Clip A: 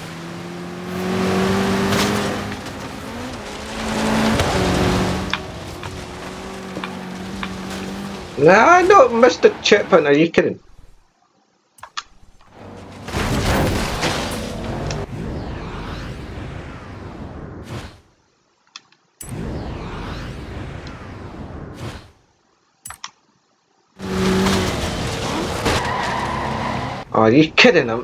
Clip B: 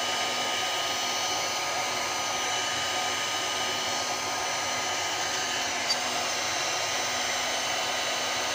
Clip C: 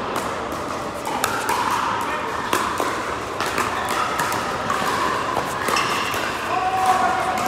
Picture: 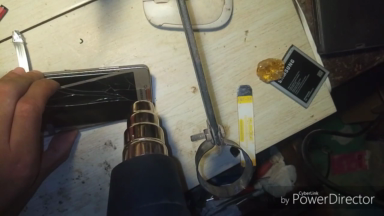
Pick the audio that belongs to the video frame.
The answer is B